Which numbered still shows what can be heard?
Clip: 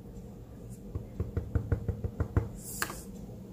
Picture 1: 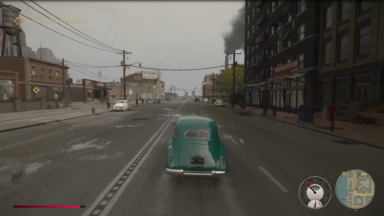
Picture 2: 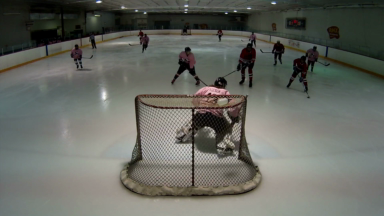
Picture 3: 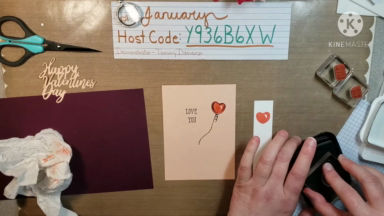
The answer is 3